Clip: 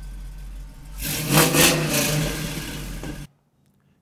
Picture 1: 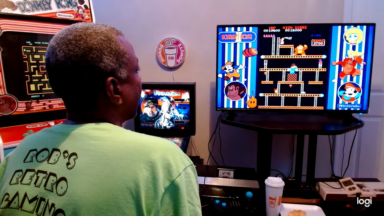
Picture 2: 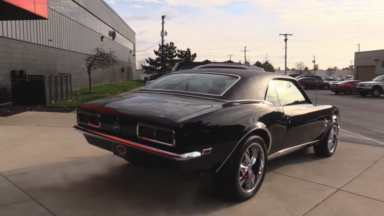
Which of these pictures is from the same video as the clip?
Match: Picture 2